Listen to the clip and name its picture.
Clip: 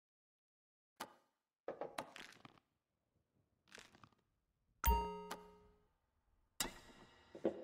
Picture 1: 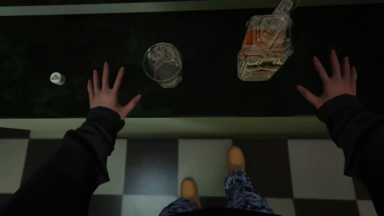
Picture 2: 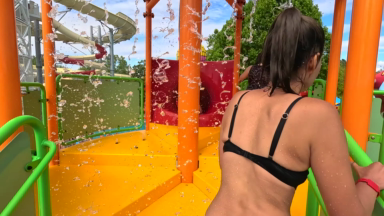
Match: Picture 1